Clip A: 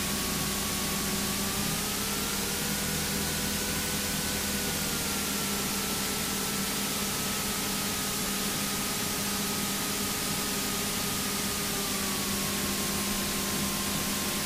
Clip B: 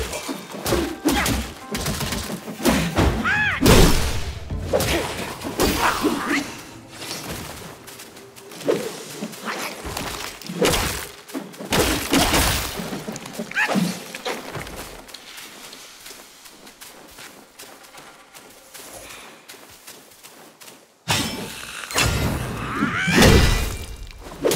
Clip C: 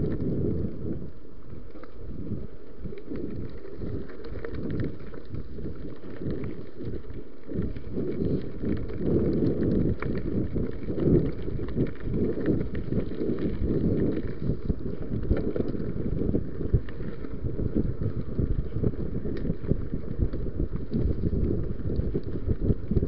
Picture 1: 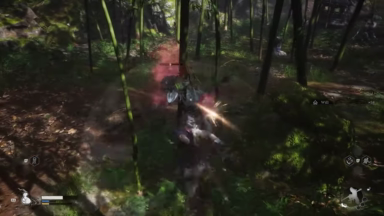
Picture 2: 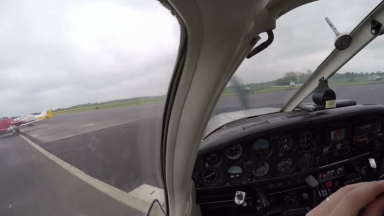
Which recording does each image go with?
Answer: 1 B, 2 A